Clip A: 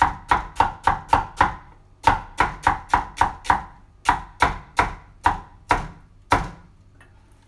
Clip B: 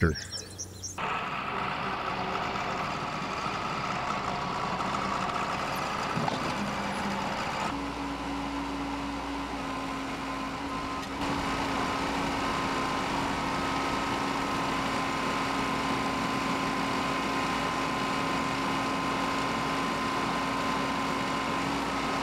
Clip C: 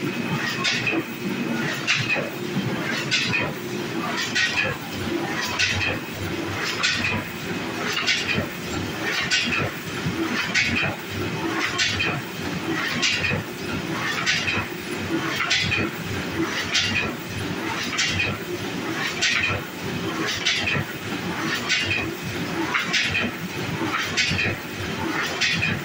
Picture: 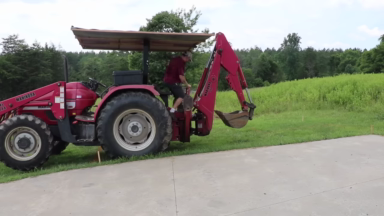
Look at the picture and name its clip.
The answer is B